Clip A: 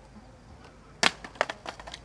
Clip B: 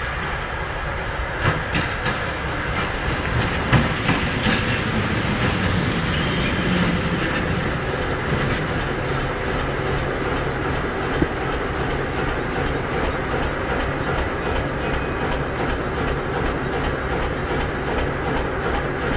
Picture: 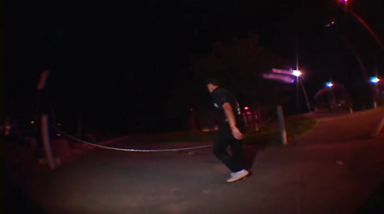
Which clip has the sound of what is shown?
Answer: A